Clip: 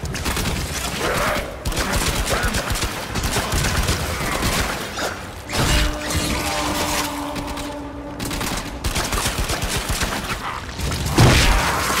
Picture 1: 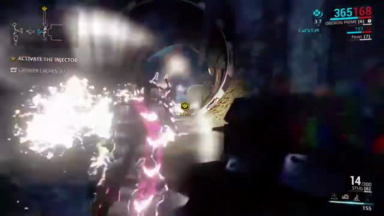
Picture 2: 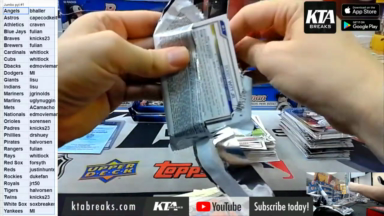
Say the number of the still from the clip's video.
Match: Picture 1